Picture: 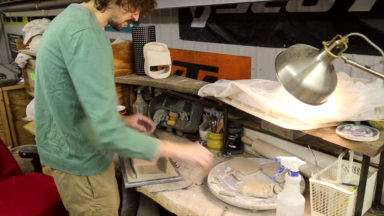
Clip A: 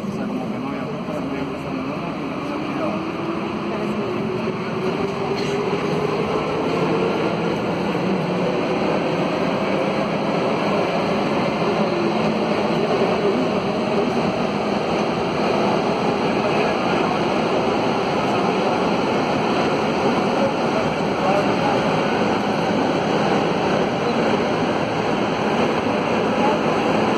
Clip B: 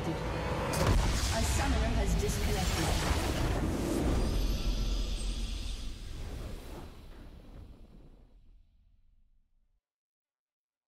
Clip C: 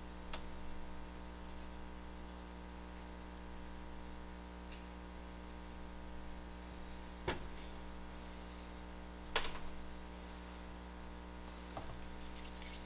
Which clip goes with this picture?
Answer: C